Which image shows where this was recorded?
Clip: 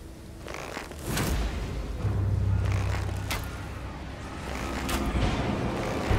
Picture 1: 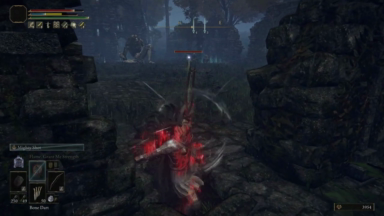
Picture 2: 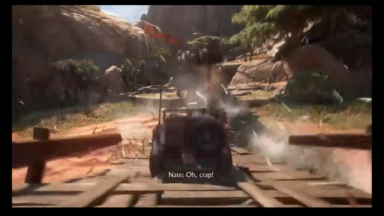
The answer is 1